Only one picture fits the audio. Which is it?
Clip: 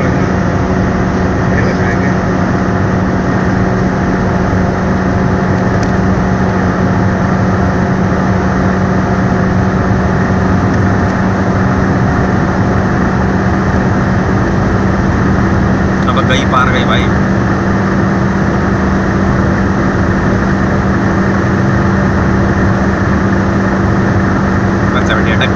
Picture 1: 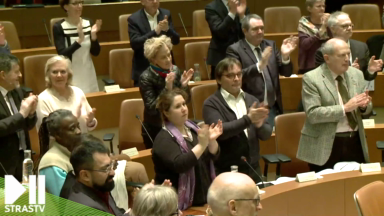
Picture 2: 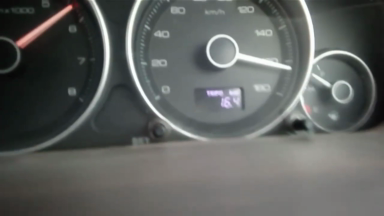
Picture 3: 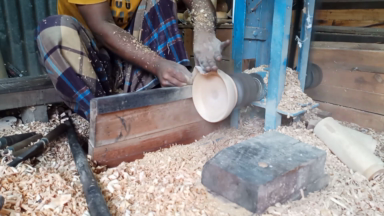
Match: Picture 2